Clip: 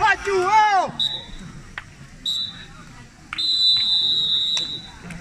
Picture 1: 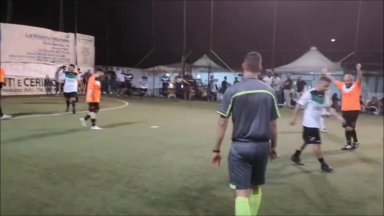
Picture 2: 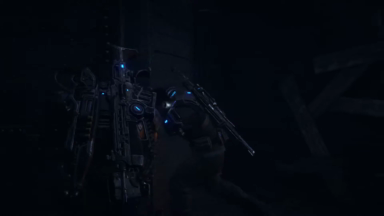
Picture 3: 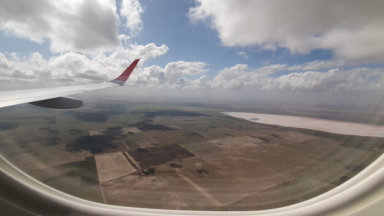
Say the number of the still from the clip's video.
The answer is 1